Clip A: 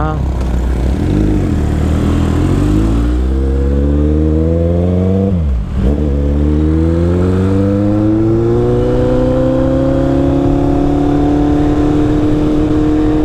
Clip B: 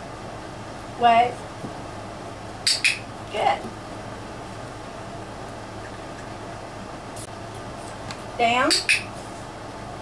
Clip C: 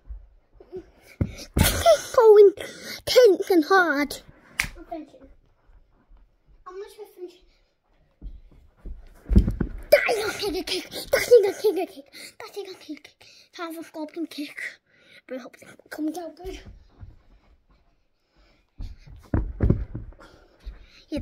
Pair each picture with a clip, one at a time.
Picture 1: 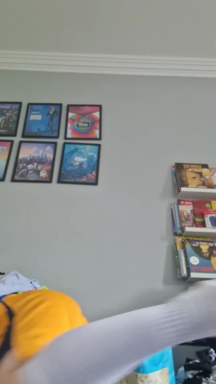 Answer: C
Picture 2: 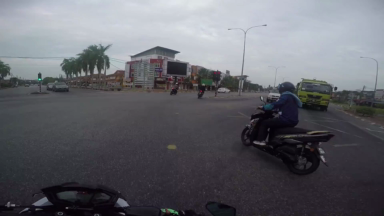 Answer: A